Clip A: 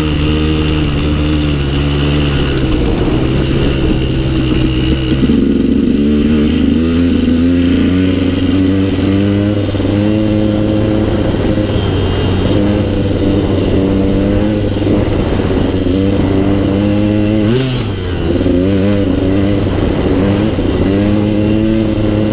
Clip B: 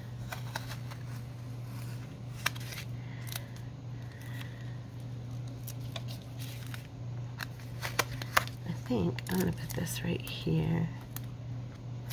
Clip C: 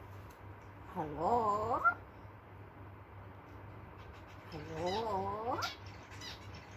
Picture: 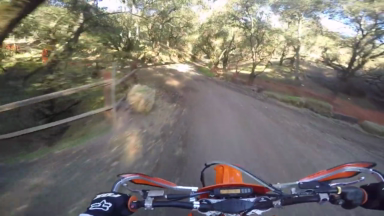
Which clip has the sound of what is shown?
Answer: A